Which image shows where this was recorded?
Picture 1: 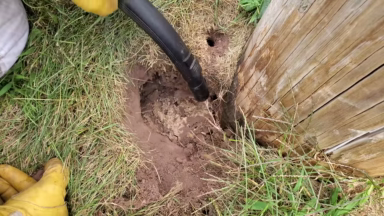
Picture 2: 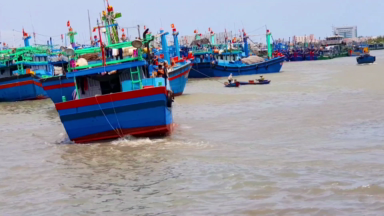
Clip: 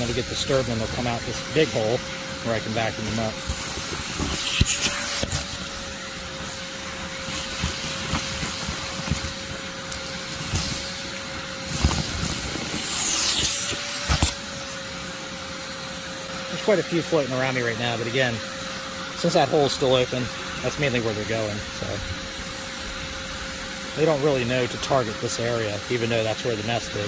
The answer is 1